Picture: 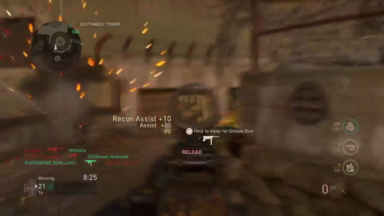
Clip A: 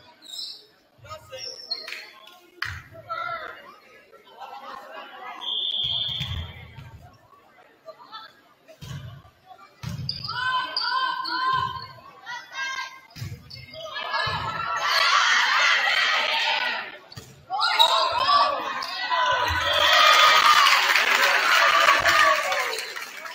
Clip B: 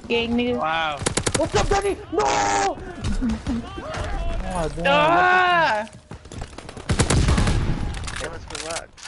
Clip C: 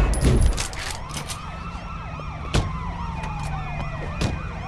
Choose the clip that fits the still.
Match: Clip B